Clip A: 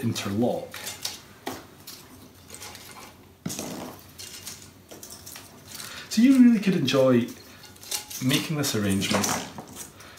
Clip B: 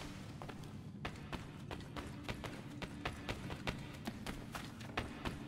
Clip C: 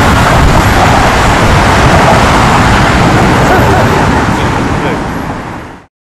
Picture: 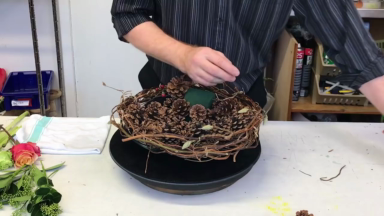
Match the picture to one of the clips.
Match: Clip A